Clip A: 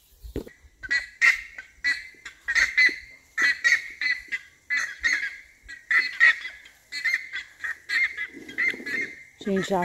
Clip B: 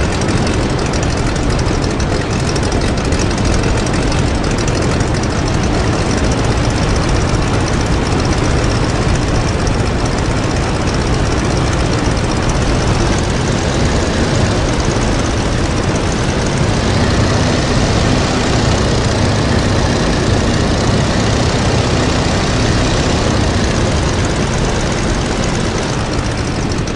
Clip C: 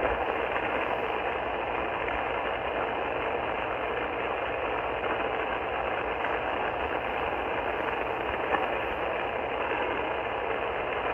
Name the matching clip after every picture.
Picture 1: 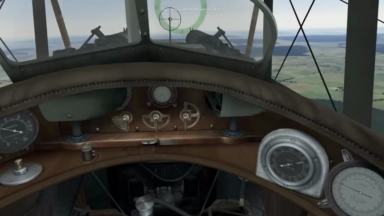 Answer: B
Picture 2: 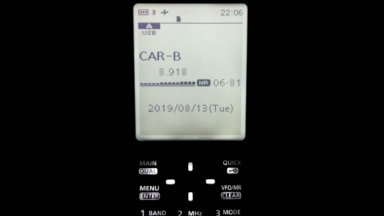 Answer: C